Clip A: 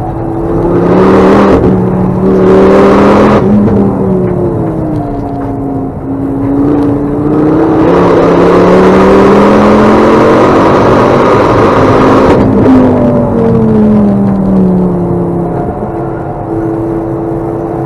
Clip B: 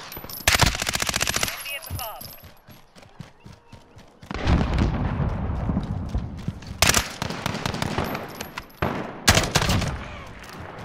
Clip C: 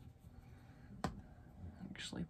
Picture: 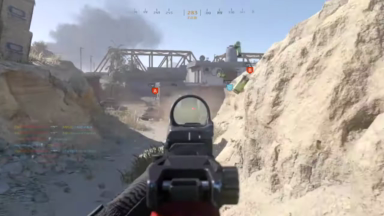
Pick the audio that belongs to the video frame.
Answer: B